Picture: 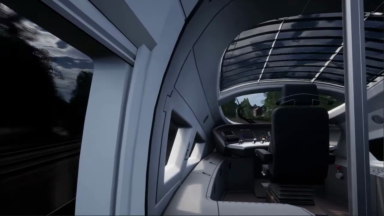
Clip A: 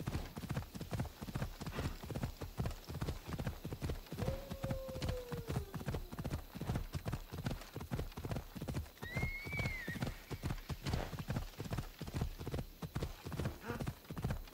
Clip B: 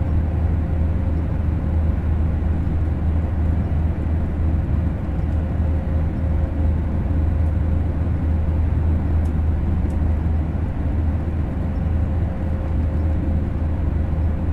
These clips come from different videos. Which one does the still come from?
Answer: B